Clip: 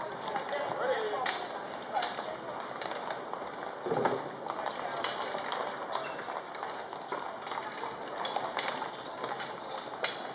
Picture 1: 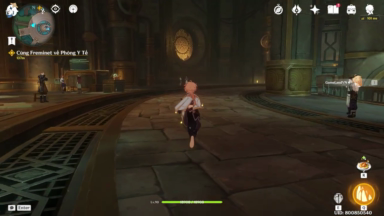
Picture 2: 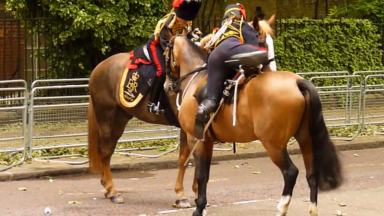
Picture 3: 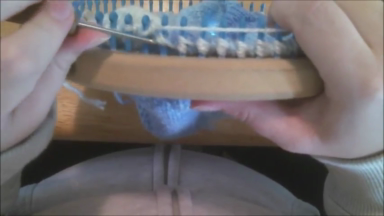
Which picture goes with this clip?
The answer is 2